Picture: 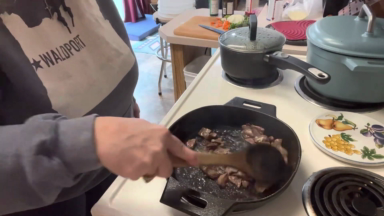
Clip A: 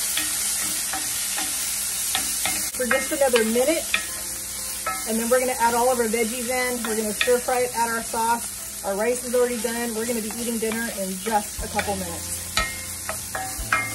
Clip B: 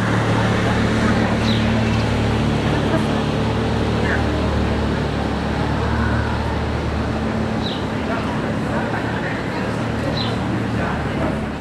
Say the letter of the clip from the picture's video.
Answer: A